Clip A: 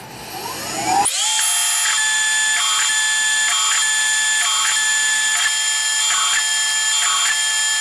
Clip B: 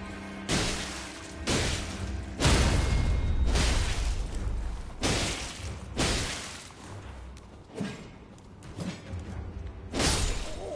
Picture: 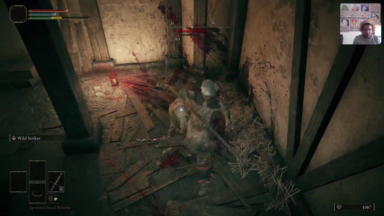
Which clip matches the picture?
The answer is B